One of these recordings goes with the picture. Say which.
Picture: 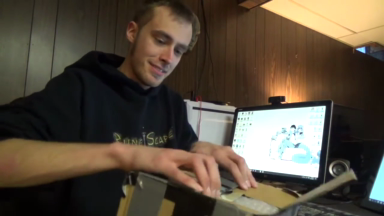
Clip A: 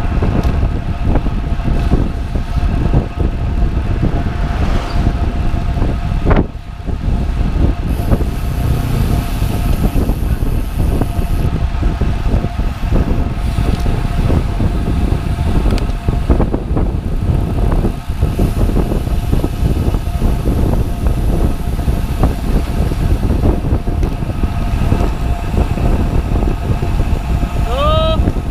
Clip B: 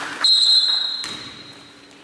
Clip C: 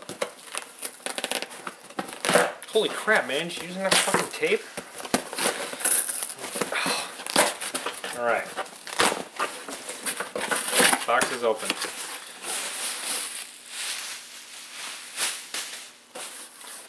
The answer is C